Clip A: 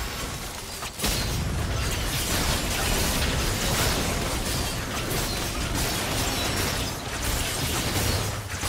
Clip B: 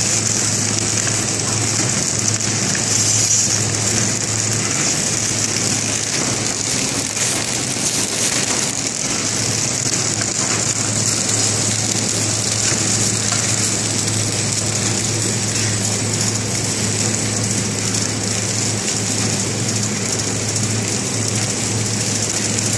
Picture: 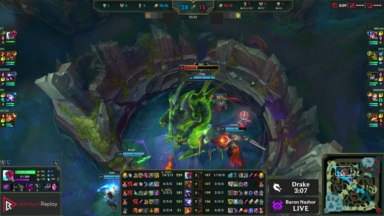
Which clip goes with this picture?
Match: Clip A